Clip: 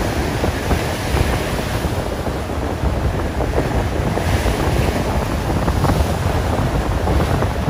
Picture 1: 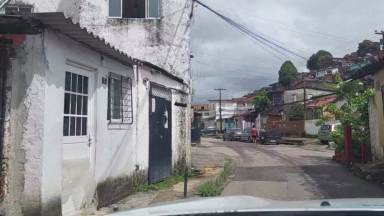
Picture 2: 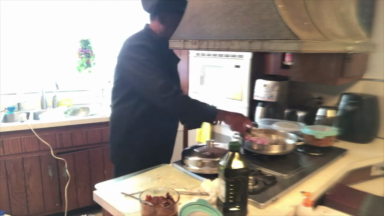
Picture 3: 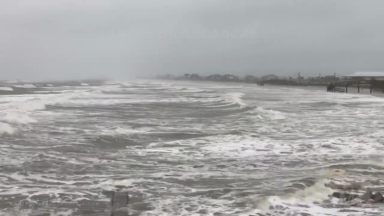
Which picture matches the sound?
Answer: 3